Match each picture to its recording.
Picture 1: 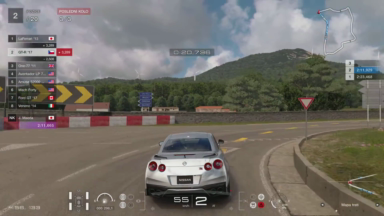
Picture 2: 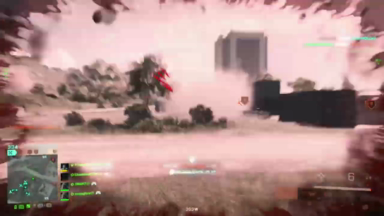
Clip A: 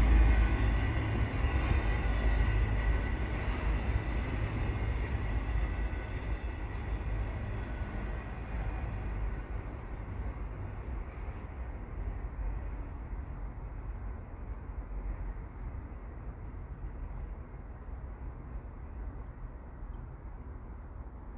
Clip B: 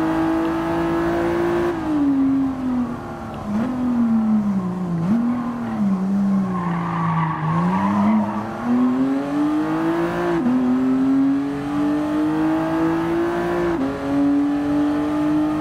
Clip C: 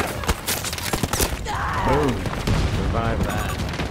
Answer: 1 B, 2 C